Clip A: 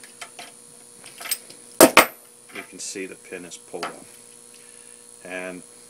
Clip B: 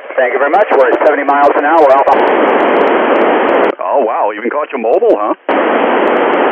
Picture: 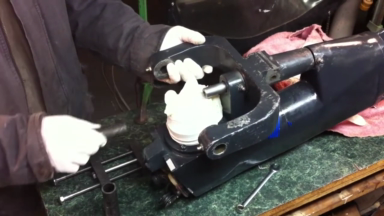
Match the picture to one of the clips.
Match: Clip A